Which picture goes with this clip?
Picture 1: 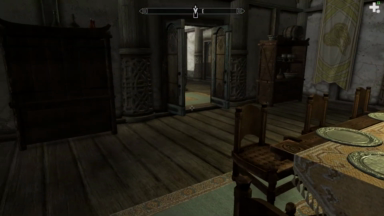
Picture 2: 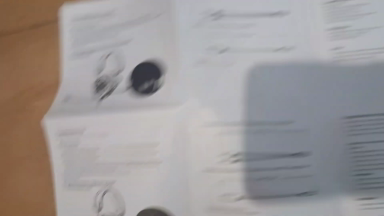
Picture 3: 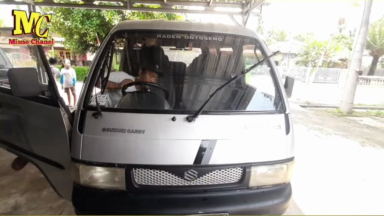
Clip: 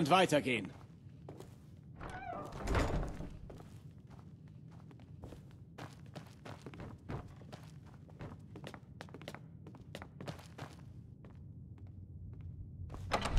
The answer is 1